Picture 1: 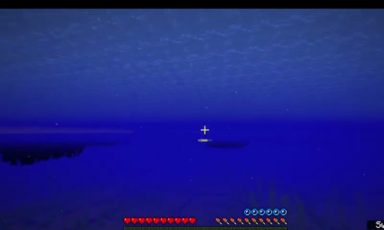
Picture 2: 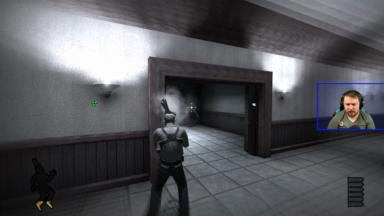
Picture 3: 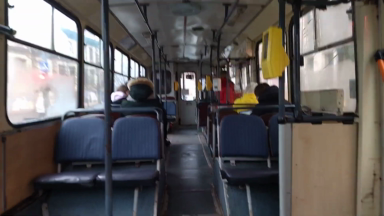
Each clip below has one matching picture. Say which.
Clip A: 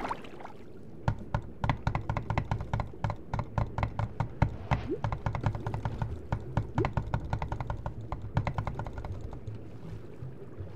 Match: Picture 1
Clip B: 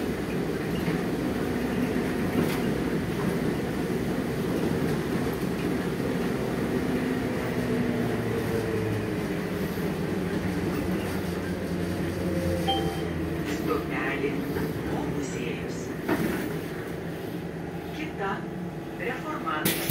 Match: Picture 3